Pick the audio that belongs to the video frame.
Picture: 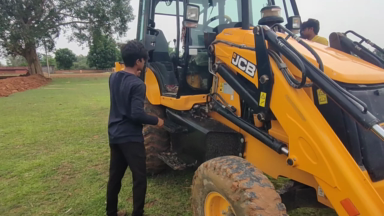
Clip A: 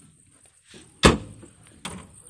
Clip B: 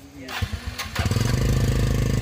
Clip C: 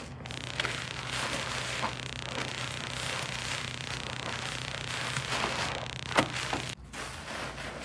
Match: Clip A